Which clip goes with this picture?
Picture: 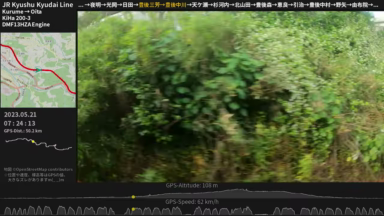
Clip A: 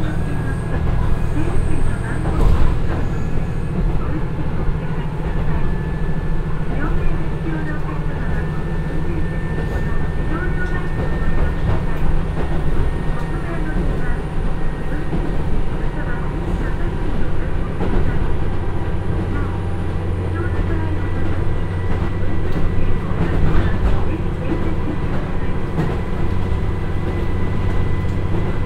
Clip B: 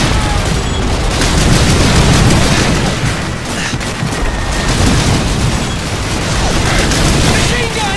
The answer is A